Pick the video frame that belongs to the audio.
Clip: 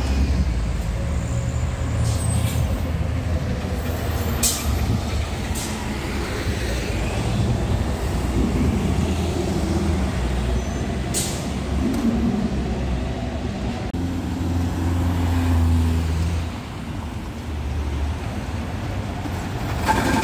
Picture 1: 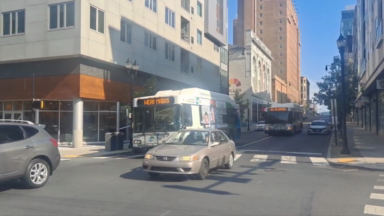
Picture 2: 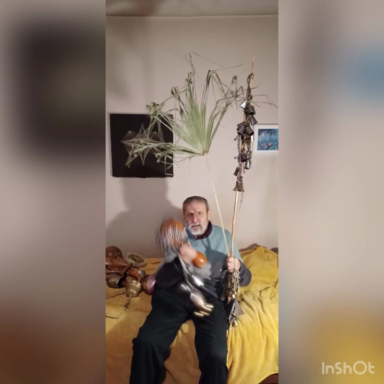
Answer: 1